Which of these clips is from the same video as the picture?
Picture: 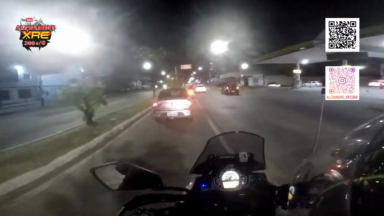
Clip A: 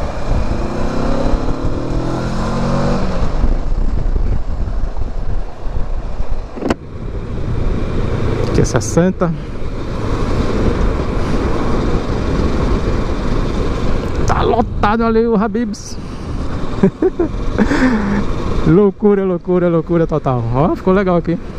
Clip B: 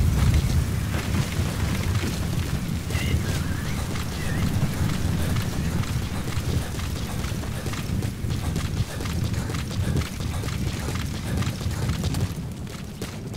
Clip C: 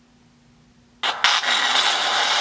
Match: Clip A